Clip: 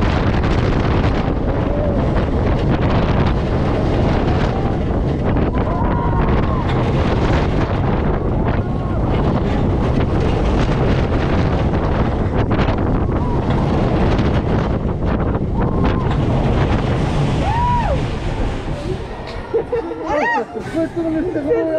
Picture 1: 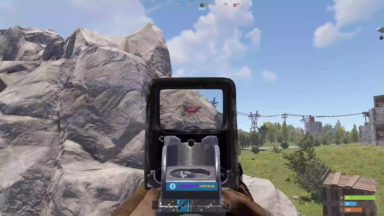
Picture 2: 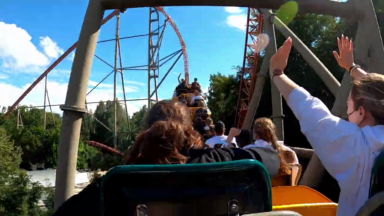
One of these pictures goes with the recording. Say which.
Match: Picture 2